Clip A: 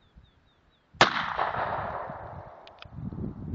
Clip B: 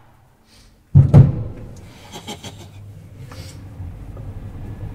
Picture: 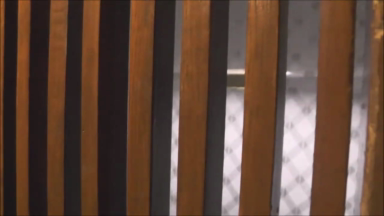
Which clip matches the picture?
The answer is B